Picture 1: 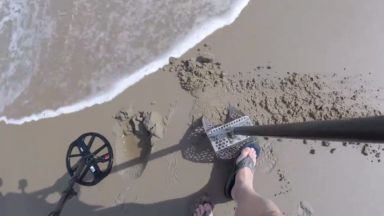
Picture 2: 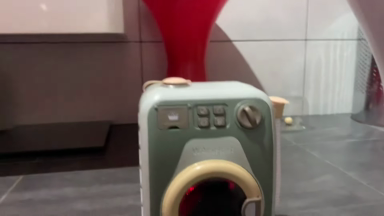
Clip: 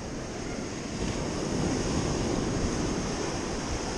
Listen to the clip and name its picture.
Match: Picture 1